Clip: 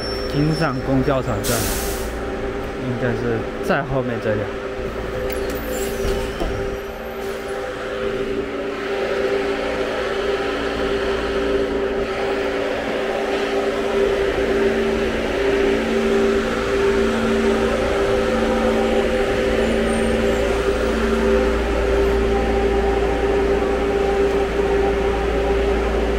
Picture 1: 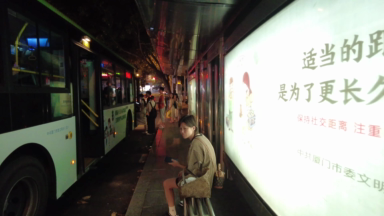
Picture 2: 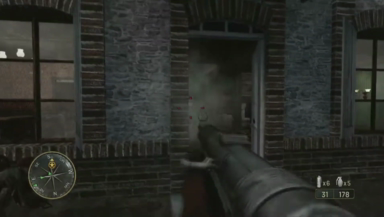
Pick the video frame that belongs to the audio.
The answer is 1